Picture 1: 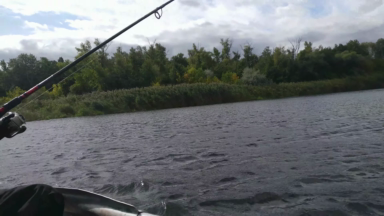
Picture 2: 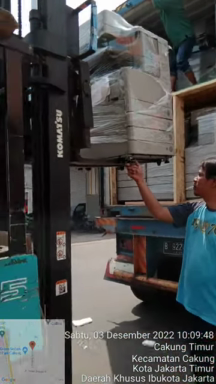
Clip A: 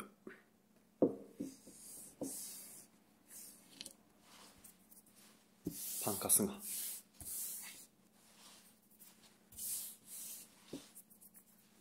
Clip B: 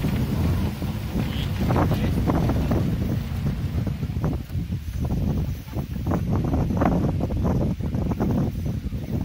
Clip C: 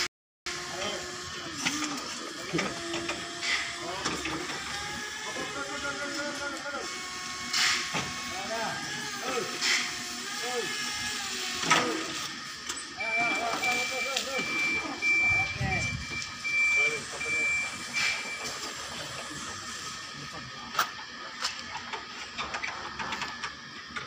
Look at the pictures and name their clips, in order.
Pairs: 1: B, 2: C